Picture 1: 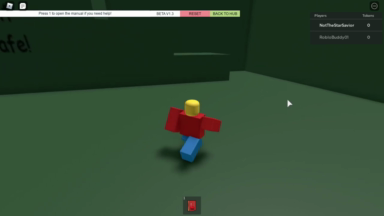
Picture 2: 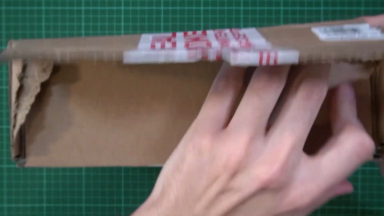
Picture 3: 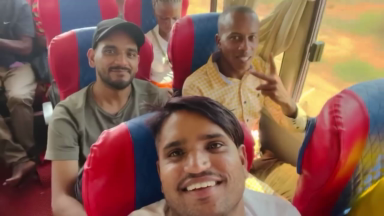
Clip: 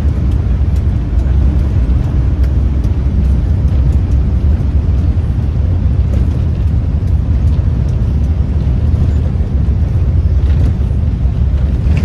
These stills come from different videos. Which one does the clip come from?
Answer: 3